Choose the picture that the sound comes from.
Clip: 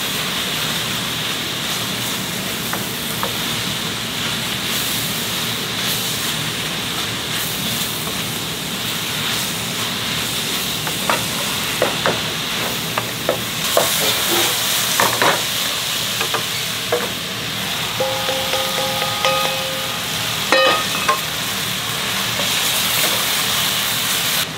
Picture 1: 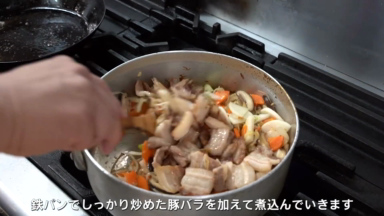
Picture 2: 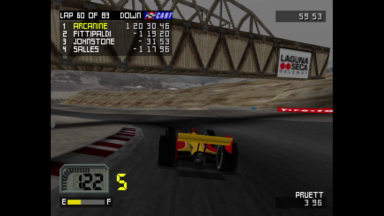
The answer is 1